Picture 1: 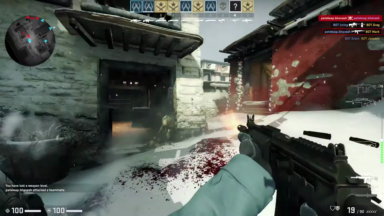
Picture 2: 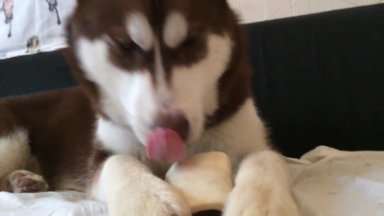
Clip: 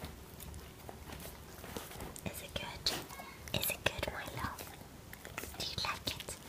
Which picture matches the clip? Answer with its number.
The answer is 2